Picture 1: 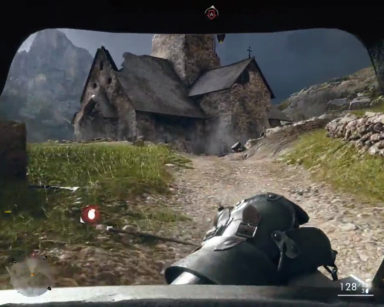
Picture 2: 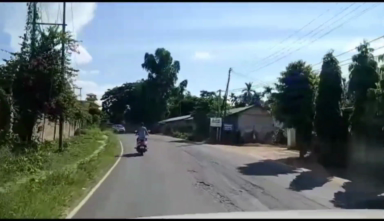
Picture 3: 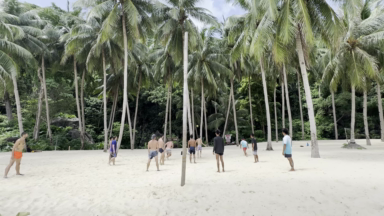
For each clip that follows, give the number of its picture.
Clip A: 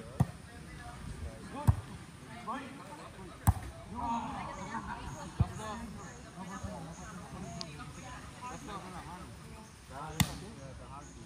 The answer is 3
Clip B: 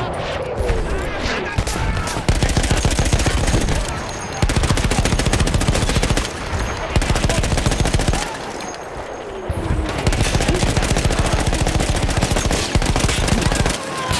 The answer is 1